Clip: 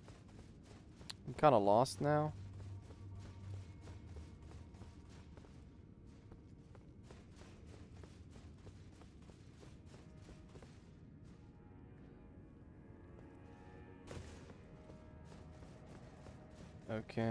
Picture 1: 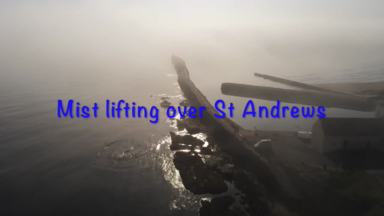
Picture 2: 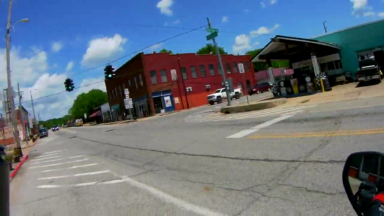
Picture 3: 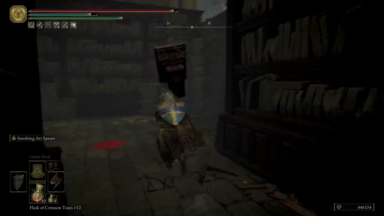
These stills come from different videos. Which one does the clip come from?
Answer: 3